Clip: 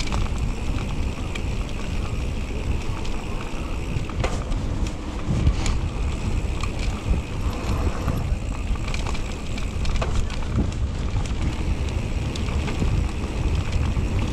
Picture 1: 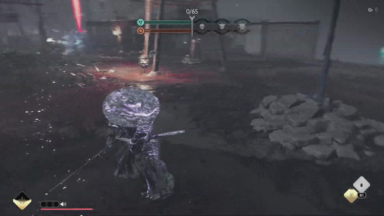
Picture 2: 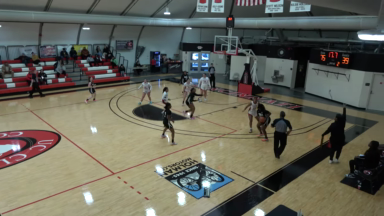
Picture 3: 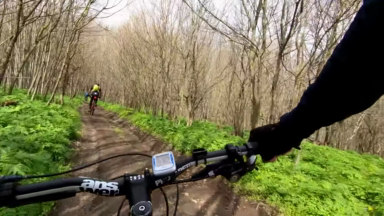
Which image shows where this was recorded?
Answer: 3